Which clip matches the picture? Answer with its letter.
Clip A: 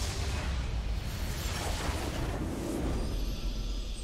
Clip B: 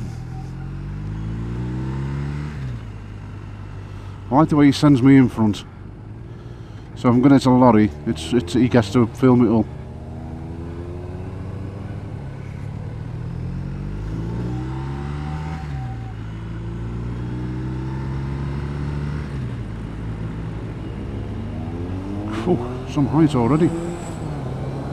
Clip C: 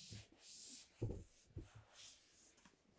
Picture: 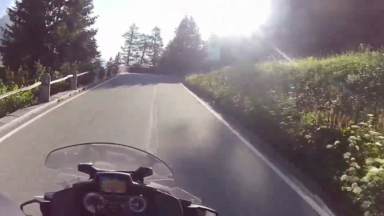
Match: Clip B